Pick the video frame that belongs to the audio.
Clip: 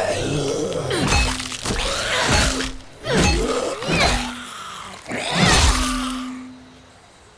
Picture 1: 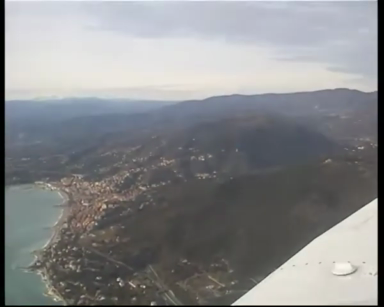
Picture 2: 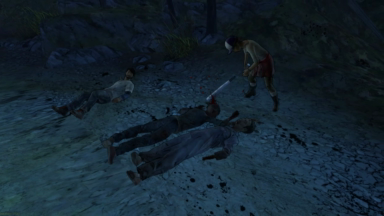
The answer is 2